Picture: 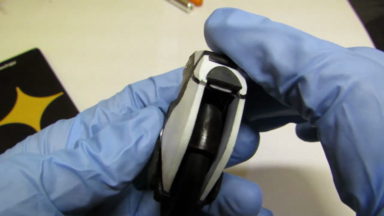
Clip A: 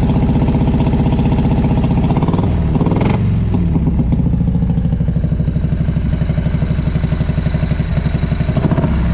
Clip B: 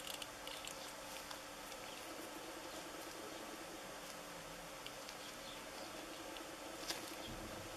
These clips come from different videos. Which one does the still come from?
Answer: B